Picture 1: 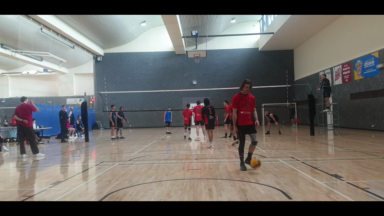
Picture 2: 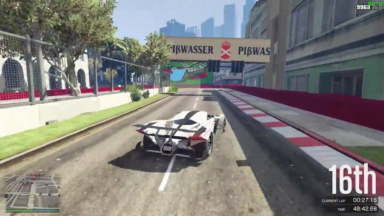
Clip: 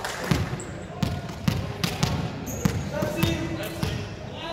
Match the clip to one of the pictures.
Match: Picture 1